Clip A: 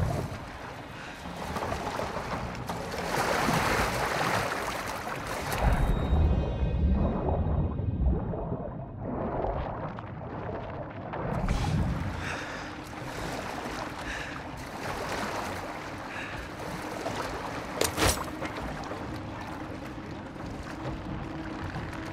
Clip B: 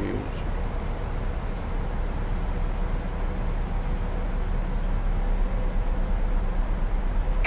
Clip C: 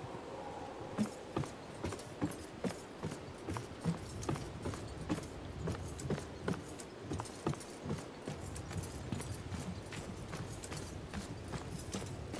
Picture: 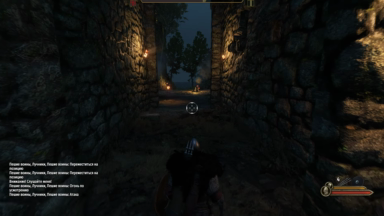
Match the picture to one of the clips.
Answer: C